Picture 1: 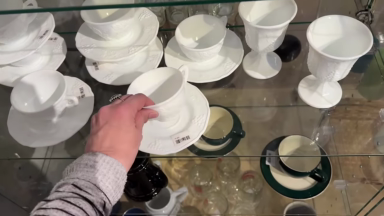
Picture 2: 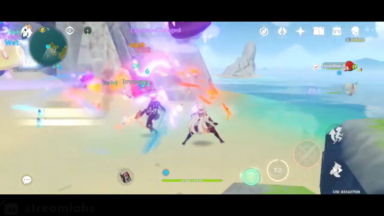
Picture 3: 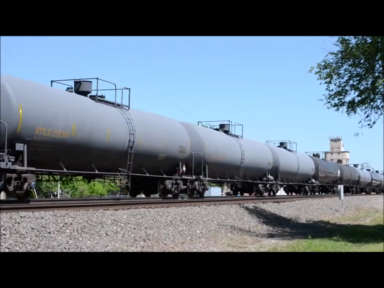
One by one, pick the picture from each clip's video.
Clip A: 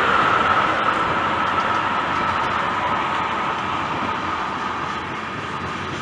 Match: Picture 3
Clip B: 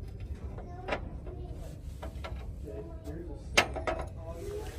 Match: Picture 1